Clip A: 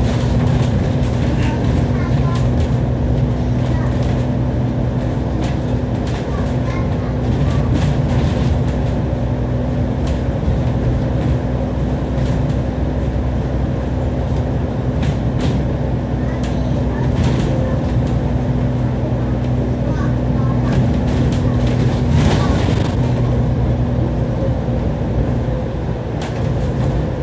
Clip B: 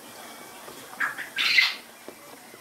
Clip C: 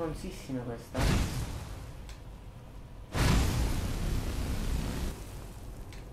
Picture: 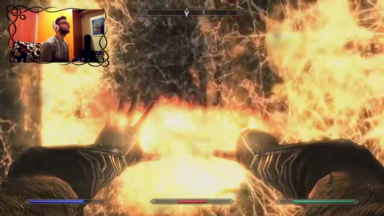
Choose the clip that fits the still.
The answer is C